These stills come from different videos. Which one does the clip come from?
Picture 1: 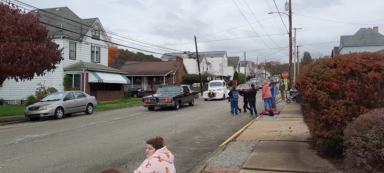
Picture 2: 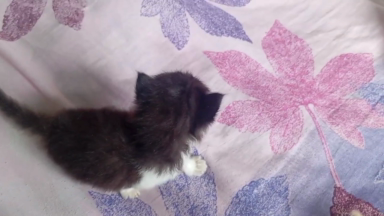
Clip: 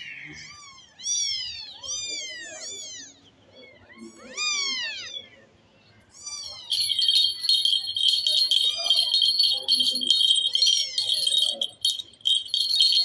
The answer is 2